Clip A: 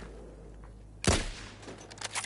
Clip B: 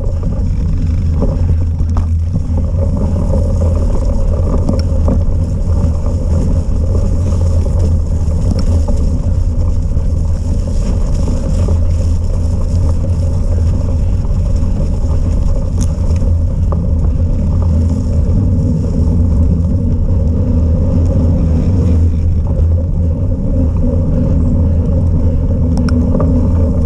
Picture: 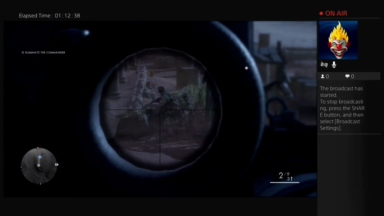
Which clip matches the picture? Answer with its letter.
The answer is A